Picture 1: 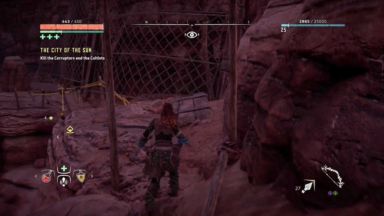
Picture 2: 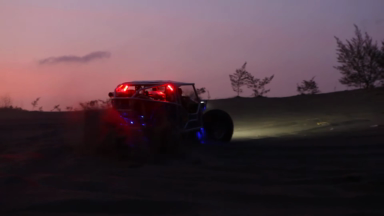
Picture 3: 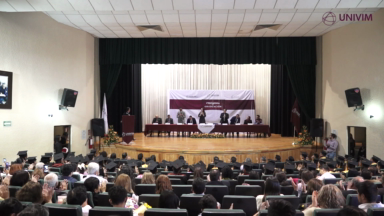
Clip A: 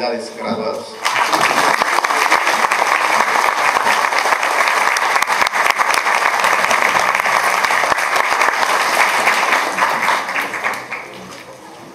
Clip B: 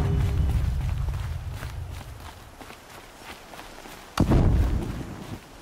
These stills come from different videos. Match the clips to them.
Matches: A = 3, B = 1